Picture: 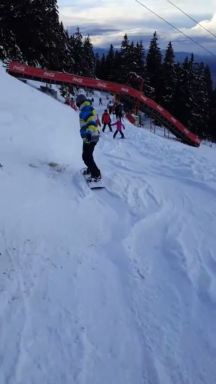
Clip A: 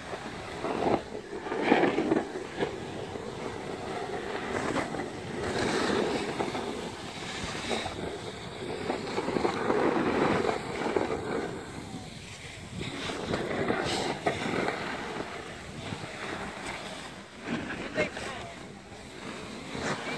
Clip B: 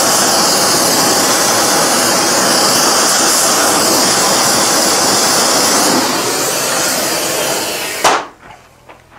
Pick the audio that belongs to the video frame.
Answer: A